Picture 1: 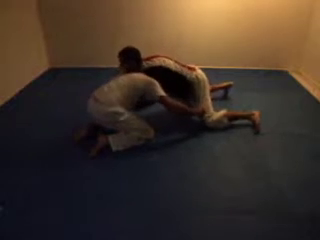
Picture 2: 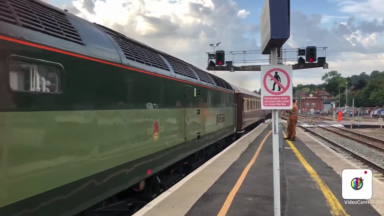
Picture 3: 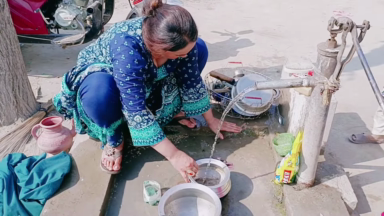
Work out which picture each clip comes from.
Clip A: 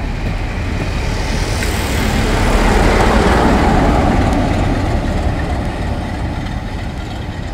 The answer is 2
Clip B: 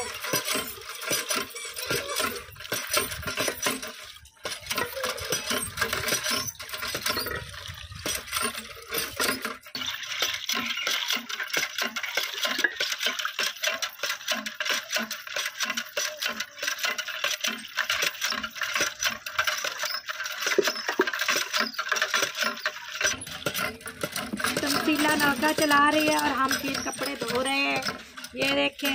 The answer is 3